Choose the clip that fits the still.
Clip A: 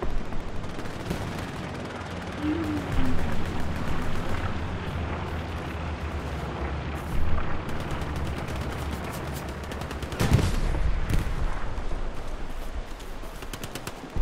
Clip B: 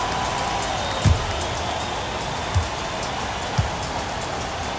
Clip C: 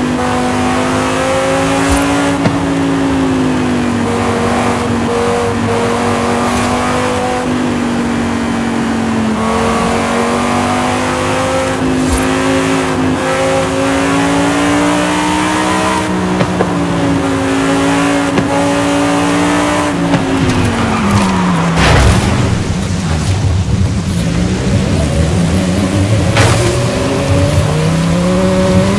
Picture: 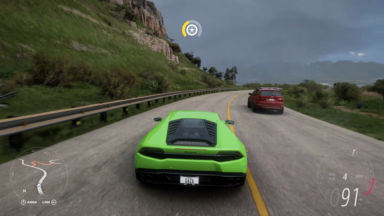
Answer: C